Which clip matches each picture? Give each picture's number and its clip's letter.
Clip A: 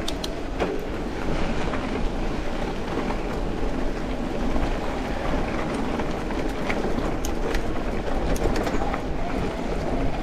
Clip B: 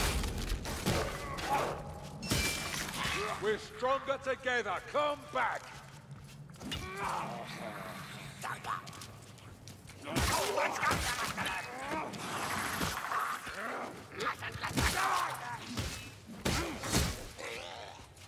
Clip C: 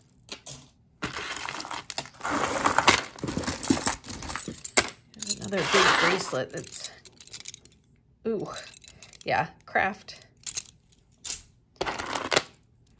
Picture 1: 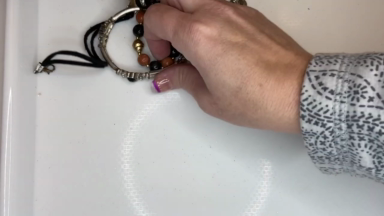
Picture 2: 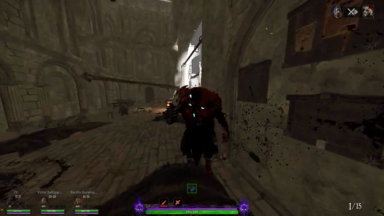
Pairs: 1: C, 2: B